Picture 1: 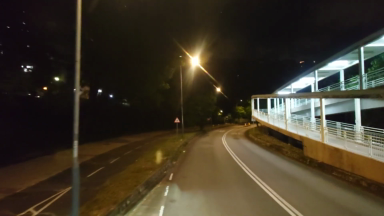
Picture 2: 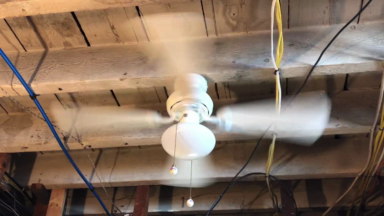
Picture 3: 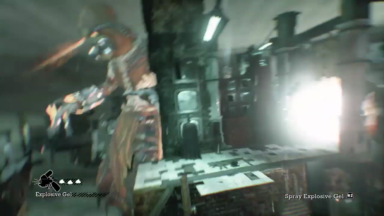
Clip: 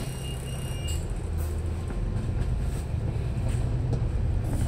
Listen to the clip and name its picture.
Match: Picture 1